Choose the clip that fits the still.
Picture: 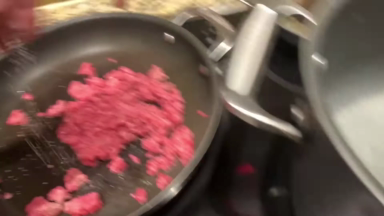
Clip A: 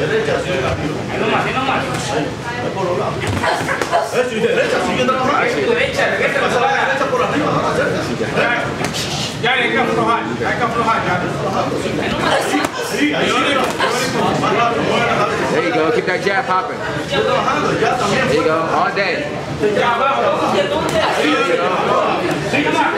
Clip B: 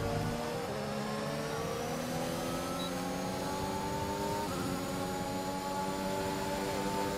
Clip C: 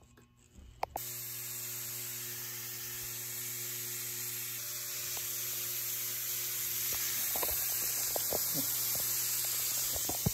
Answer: C